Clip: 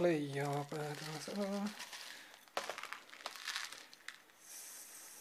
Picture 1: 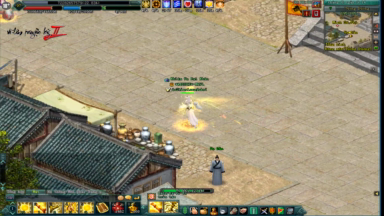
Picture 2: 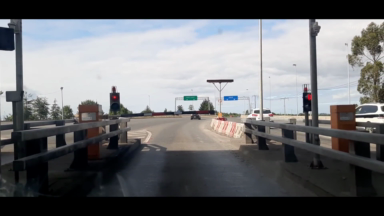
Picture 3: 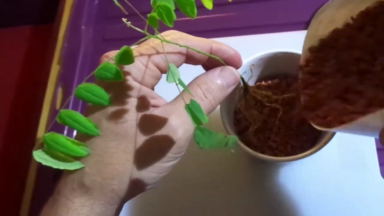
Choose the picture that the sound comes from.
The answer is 3